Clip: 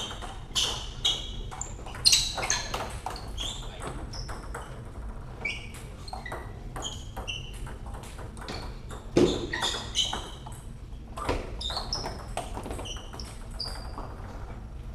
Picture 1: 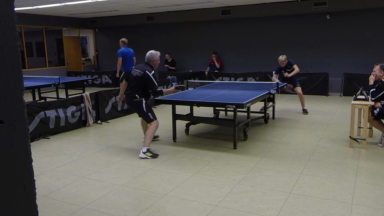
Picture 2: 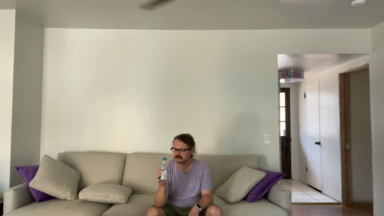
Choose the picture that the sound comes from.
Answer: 1